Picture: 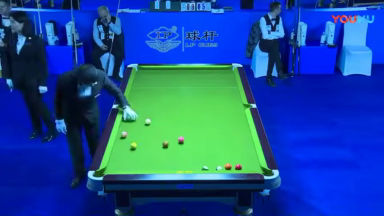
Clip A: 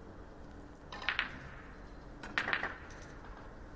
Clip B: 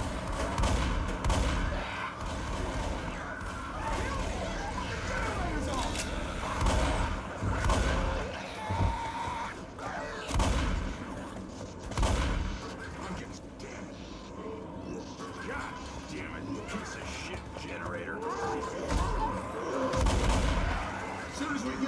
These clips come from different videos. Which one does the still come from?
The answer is A